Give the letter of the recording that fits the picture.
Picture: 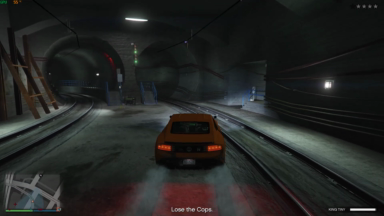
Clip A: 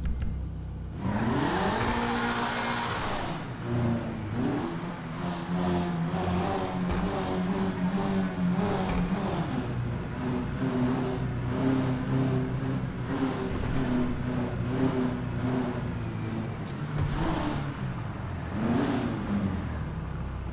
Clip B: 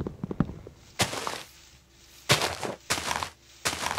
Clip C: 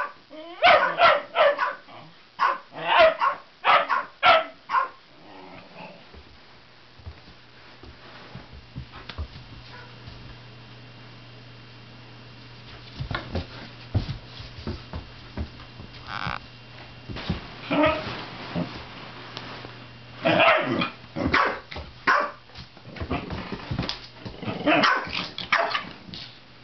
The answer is A